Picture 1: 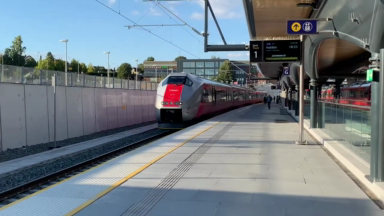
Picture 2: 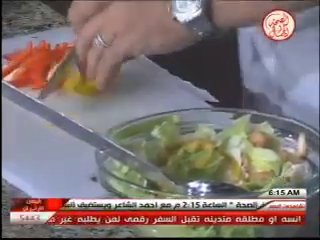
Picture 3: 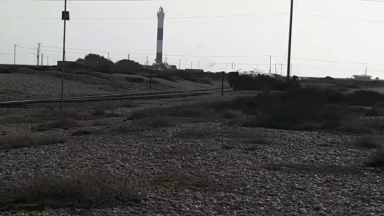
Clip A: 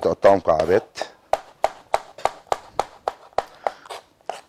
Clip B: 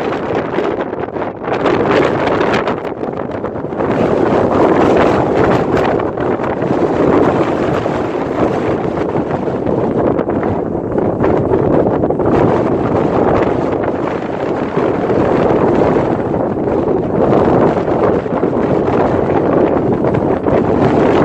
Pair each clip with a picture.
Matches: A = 2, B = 3